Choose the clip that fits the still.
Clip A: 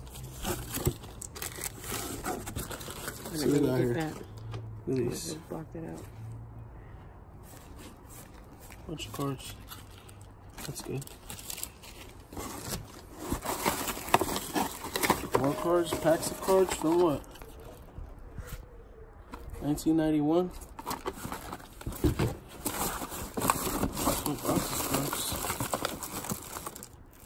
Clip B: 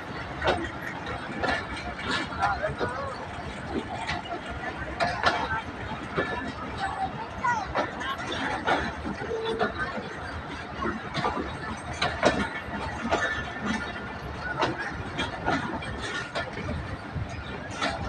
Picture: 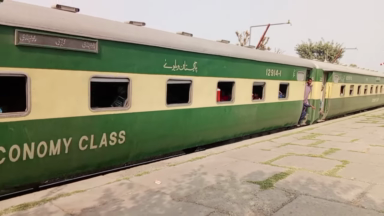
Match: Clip B